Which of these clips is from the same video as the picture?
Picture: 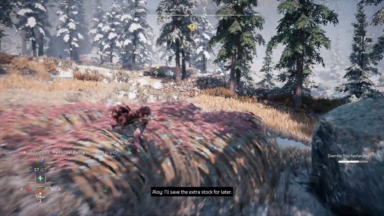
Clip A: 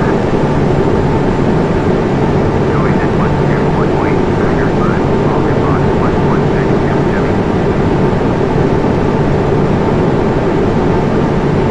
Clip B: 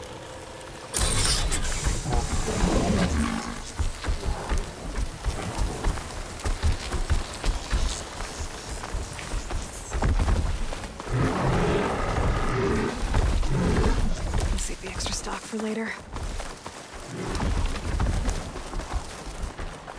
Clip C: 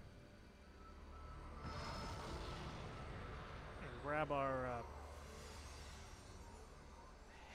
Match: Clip B